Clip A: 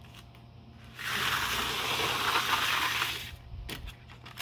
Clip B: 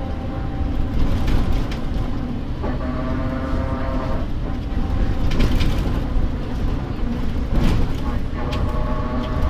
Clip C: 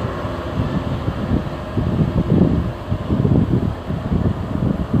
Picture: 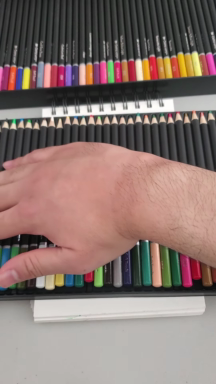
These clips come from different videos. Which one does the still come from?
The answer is A